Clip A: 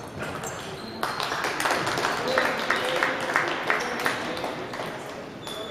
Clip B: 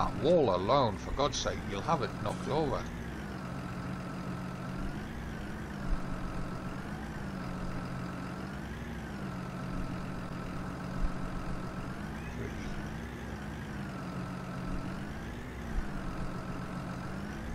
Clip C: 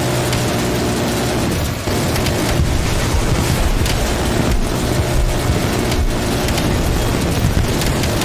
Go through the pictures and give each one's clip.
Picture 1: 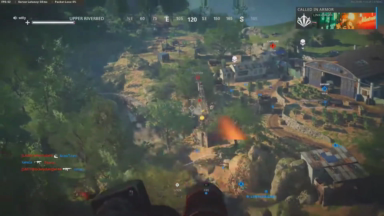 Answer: C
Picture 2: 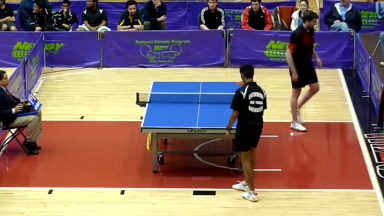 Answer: A